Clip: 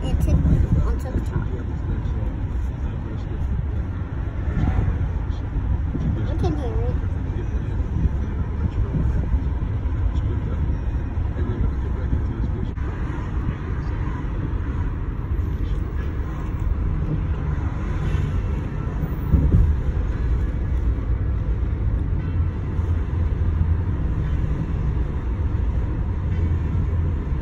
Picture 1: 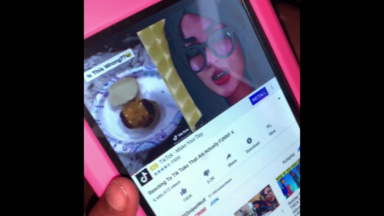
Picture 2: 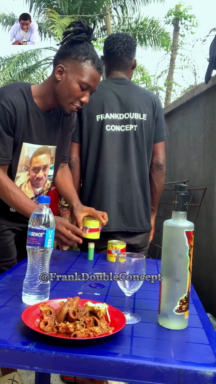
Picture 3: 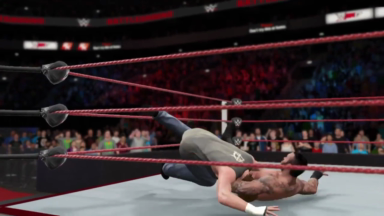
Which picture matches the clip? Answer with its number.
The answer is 1